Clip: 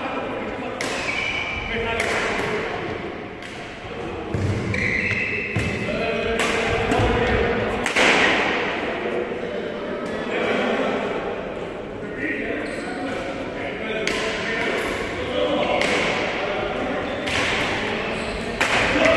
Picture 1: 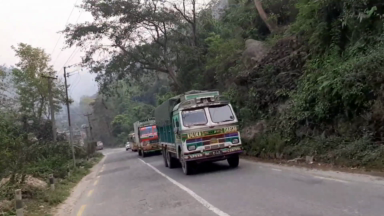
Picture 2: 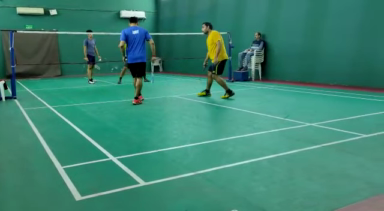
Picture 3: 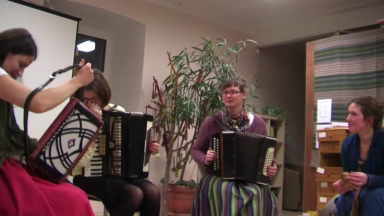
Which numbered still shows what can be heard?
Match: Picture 2